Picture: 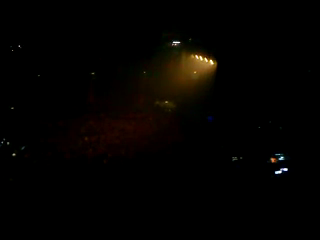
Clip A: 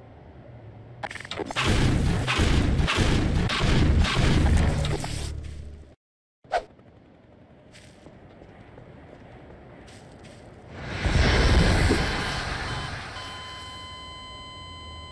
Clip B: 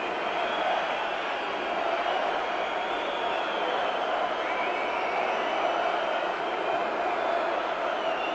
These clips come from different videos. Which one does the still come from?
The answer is B